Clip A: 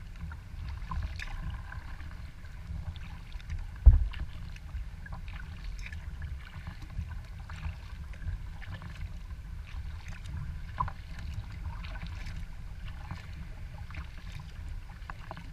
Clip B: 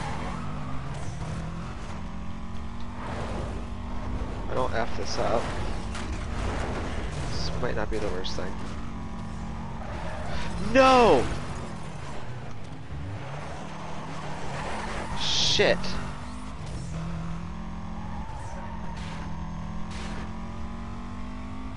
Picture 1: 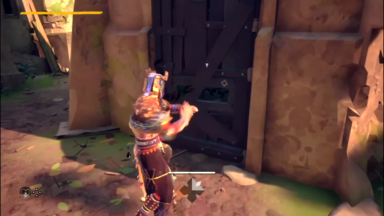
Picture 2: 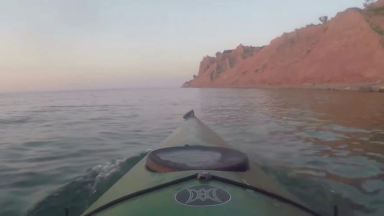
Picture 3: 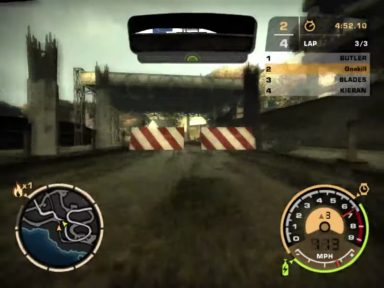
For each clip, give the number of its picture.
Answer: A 2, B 3